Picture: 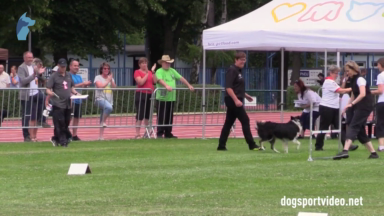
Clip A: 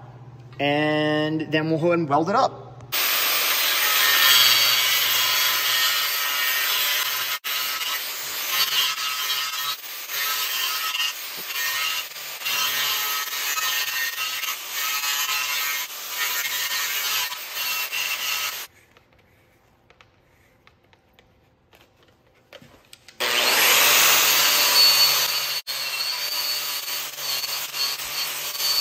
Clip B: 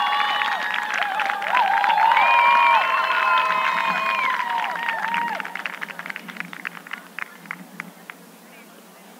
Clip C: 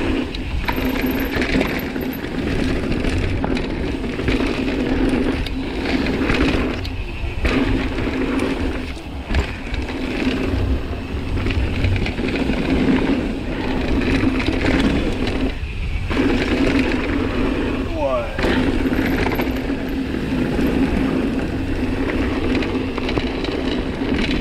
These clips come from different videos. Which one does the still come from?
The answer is B